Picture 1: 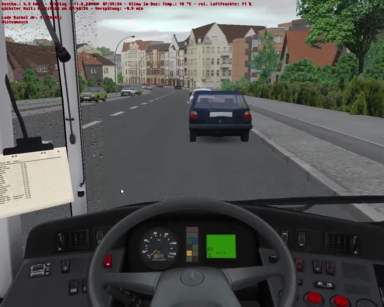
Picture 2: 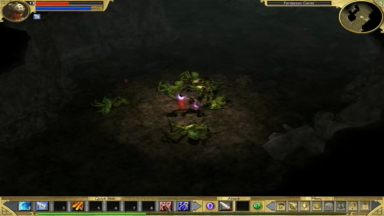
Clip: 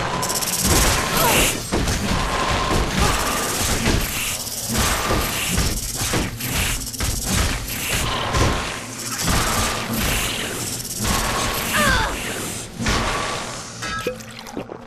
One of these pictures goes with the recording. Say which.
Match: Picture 2